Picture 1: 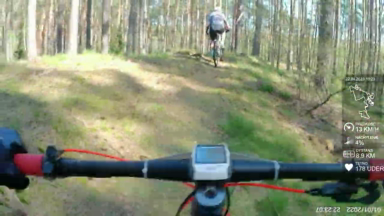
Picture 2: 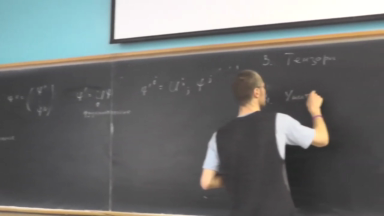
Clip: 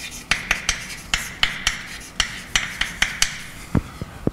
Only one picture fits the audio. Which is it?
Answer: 2